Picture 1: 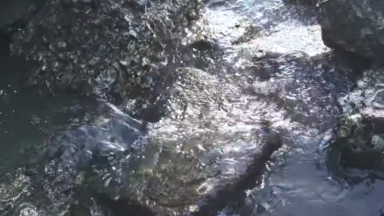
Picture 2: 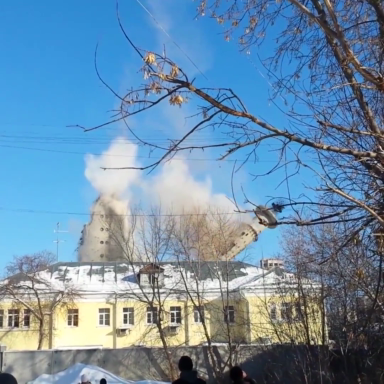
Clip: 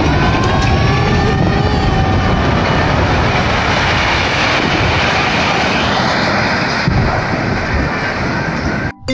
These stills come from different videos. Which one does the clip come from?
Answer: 2